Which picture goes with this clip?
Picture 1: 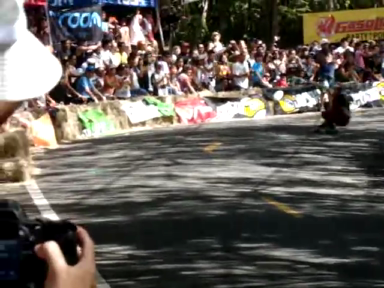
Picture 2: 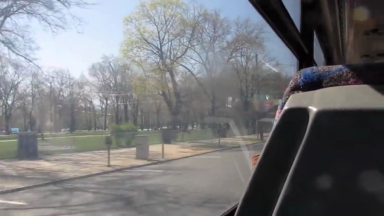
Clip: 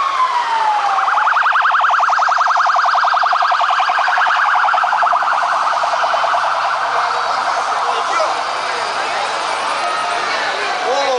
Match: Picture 1